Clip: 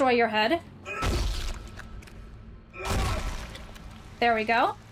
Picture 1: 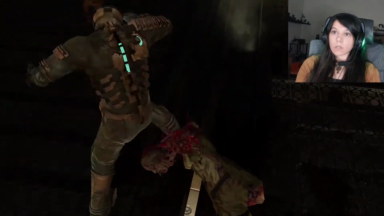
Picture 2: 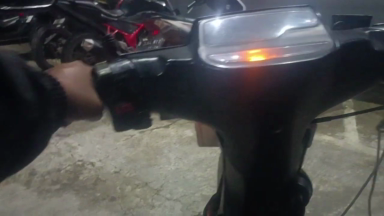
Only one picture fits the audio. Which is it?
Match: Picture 1